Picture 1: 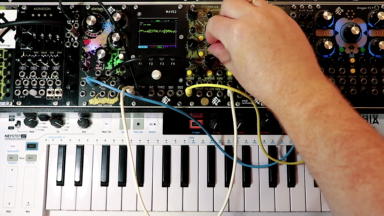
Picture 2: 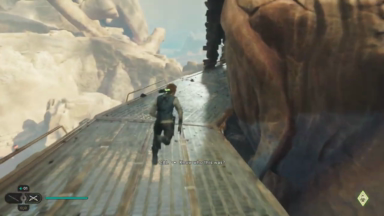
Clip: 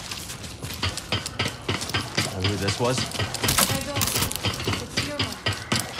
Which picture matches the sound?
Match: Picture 2